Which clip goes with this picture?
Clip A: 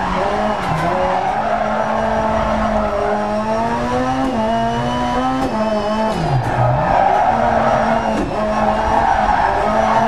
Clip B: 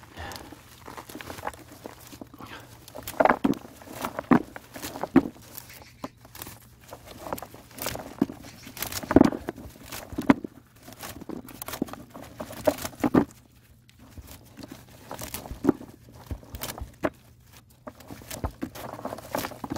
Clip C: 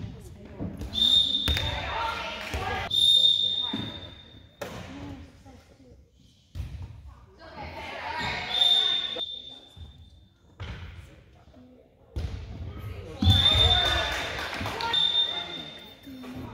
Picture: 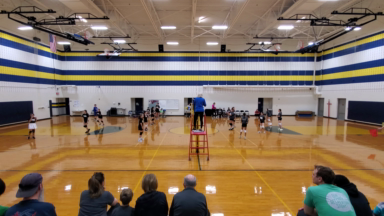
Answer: C